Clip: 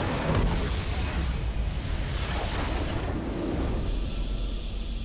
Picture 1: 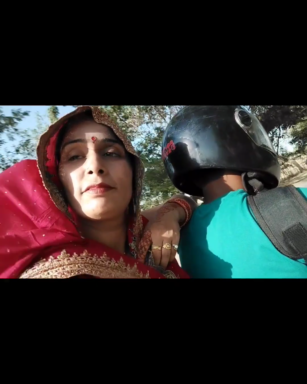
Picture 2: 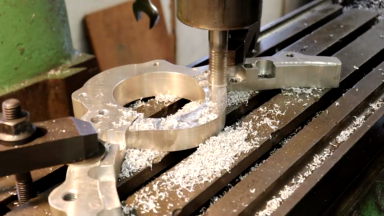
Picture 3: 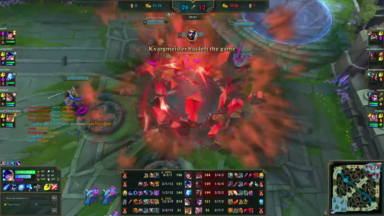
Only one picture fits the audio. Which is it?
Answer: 3